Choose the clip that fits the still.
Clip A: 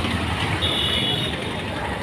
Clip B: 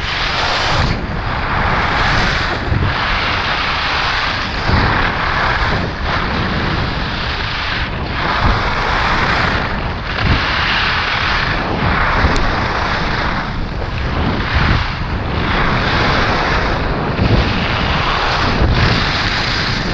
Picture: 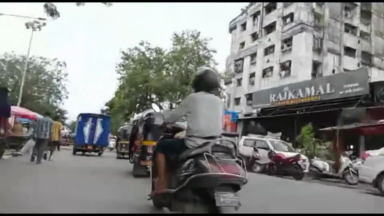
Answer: A